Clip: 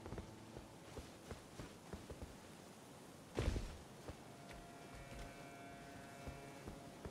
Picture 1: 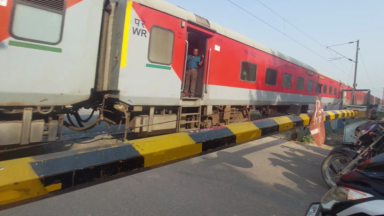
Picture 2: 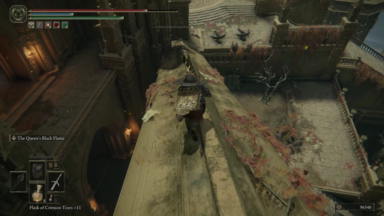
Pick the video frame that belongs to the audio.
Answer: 2